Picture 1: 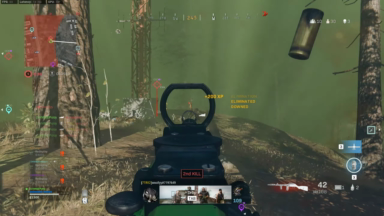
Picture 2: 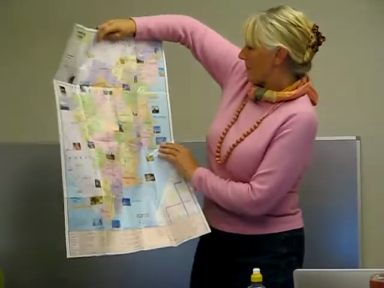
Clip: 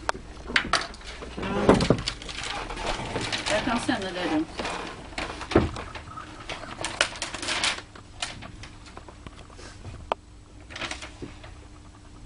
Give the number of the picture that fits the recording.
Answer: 2